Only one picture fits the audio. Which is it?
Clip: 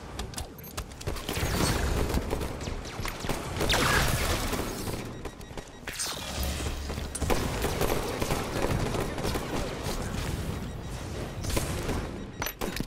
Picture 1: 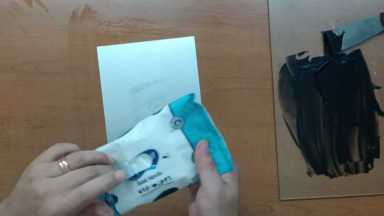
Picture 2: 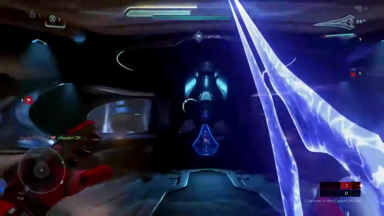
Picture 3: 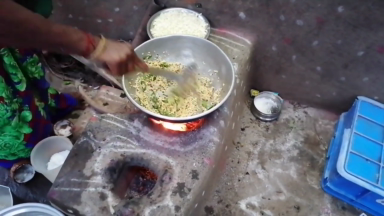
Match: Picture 2